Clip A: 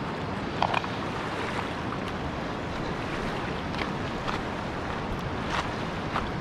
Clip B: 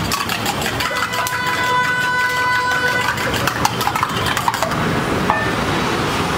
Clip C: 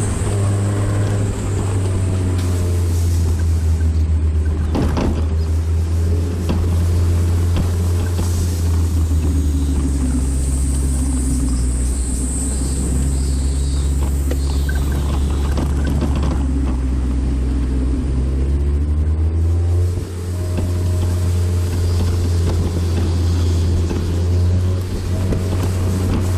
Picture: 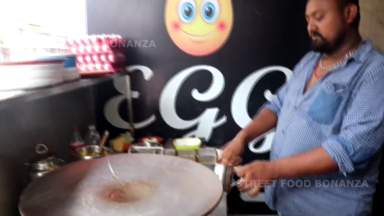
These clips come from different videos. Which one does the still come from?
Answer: B